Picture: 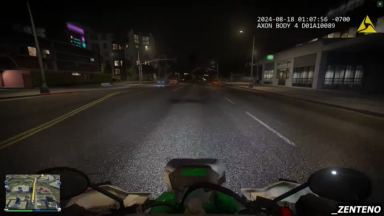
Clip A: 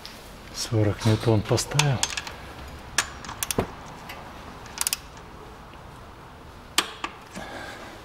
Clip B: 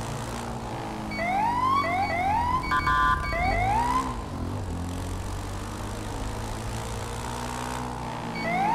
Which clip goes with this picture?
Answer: B